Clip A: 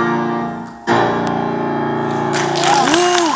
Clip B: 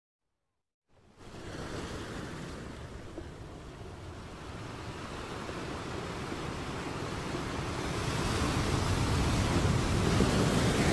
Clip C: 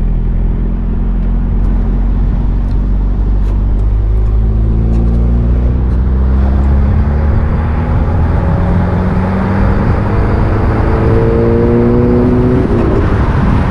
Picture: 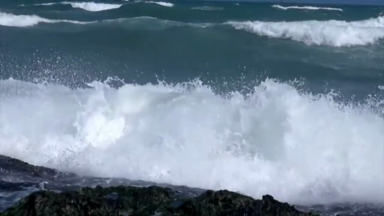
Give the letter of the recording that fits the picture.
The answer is B